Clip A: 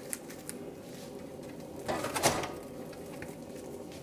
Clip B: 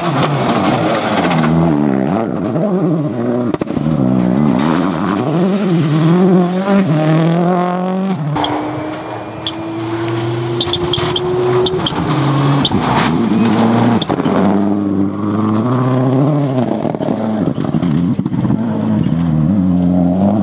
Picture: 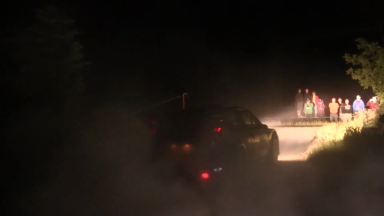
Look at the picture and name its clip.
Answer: B